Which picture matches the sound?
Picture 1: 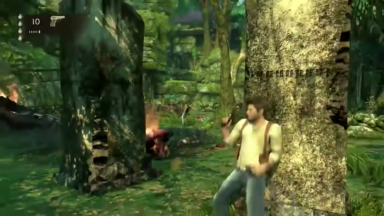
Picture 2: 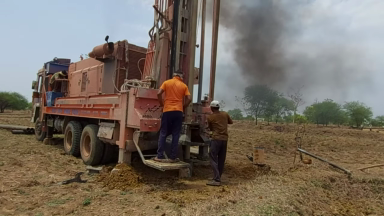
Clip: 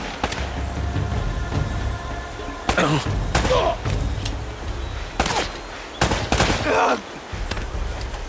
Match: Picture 1